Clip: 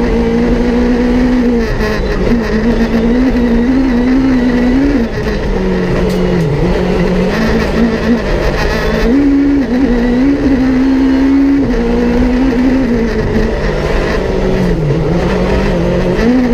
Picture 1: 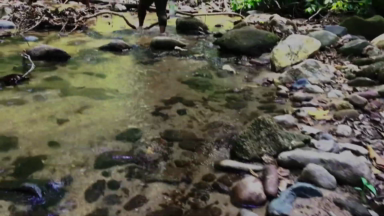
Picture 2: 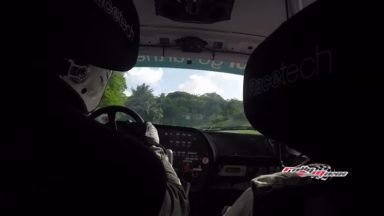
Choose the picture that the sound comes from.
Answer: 2